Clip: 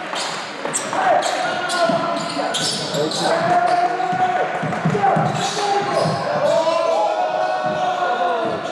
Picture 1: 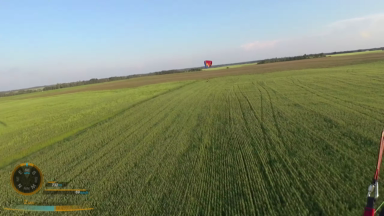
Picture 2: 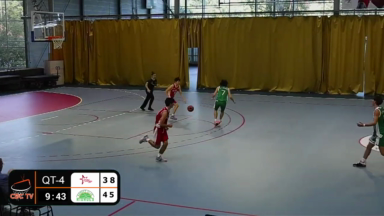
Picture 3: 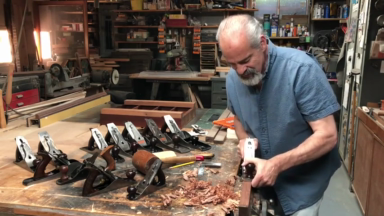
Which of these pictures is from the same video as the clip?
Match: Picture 2